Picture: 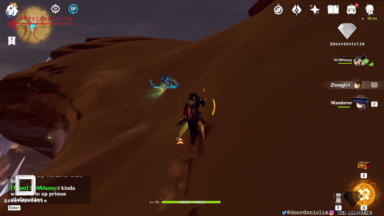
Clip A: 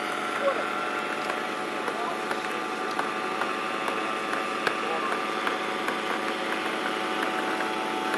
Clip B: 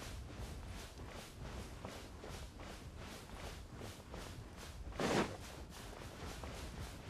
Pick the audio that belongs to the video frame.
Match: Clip B